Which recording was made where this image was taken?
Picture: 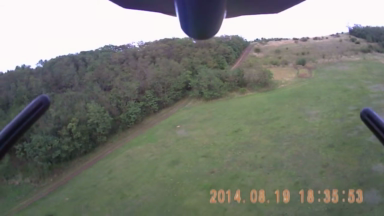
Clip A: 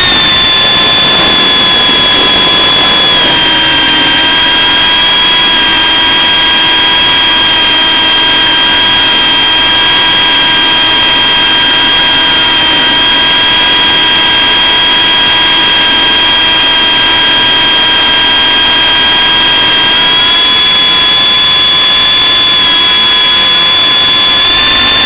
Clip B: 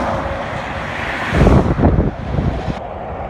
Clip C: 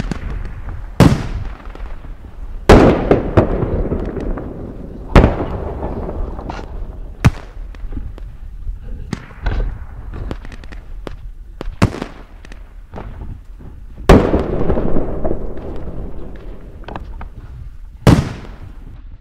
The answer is A